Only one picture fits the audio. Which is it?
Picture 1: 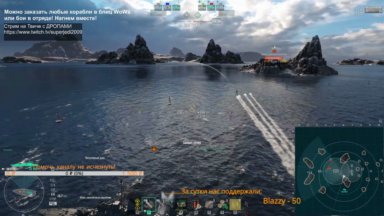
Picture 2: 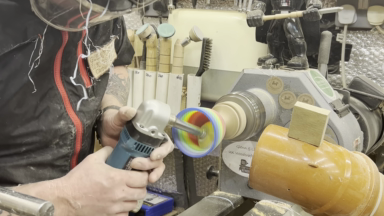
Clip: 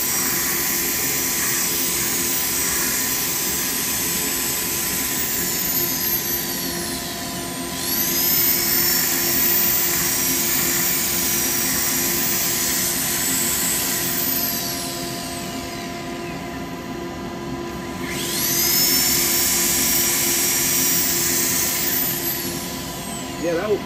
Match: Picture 2